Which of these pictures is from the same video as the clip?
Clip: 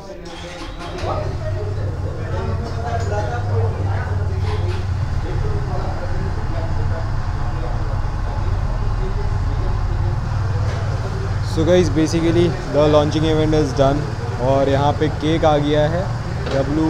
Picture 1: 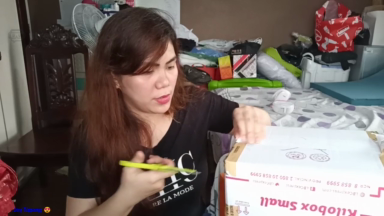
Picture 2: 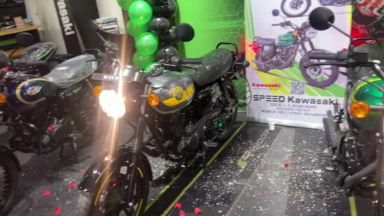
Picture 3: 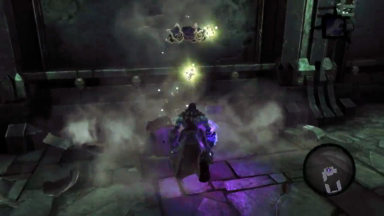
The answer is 2